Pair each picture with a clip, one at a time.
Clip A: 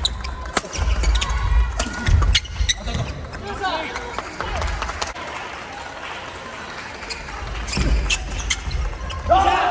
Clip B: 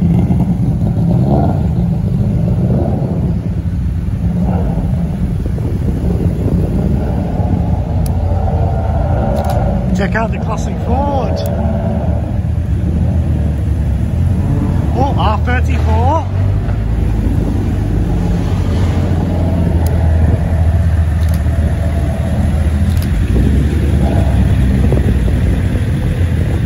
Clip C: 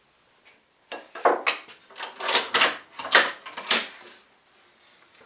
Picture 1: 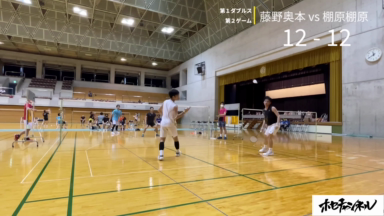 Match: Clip A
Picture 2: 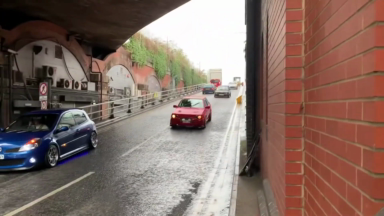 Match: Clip B